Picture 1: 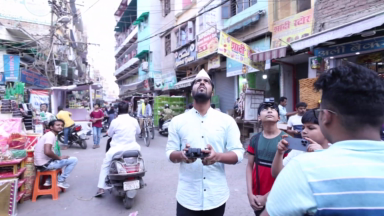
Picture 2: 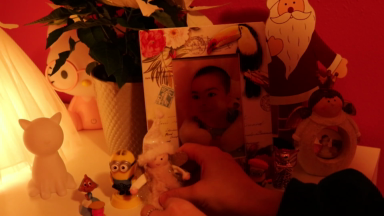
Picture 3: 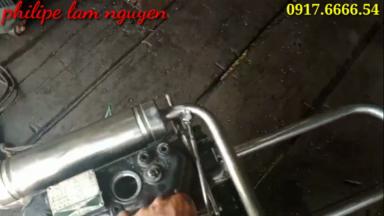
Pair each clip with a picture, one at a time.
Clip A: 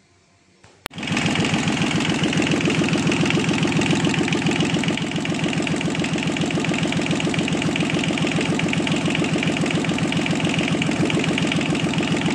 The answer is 3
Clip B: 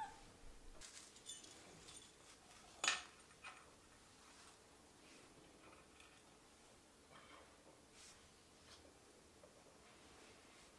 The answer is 2